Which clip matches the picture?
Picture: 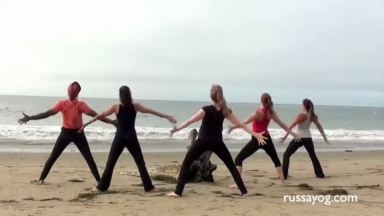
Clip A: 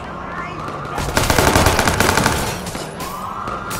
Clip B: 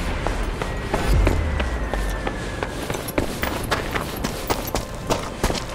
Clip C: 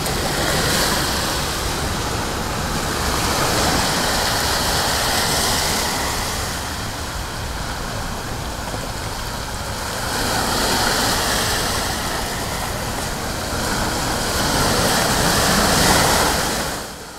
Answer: C